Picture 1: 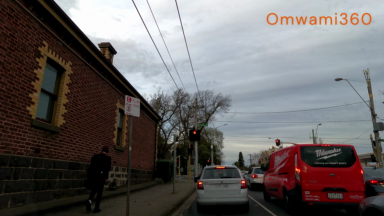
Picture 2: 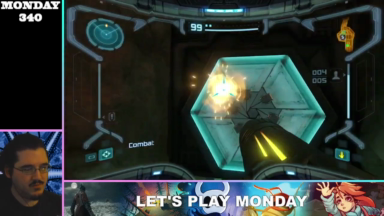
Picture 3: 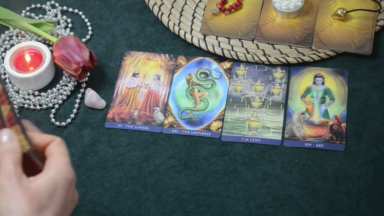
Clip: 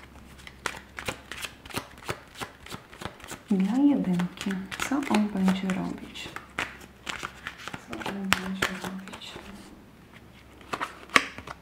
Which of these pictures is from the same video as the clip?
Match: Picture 3